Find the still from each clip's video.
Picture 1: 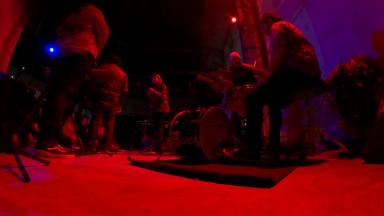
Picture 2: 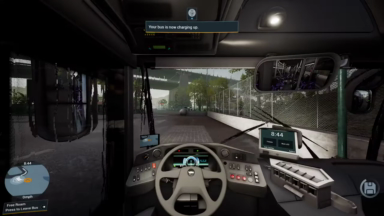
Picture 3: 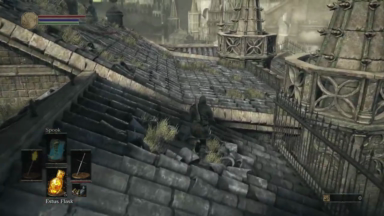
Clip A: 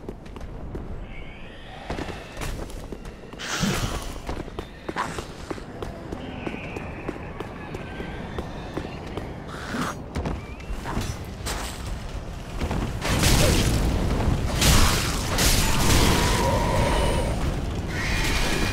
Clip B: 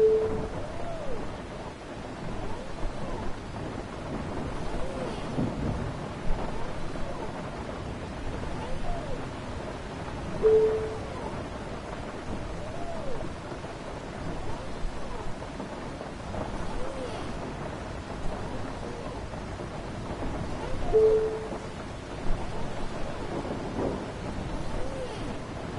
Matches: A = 3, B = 2